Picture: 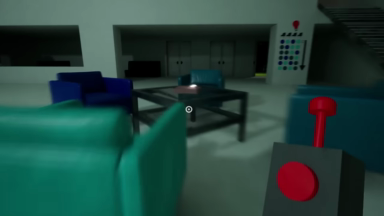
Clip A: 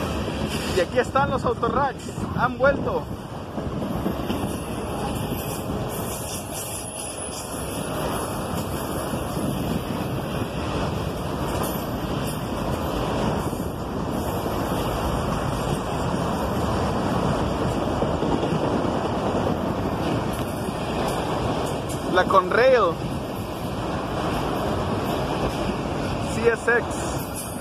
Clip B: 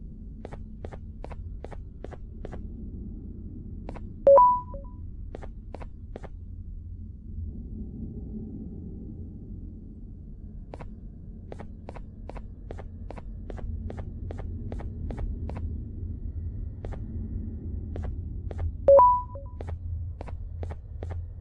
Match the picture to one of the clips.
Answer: B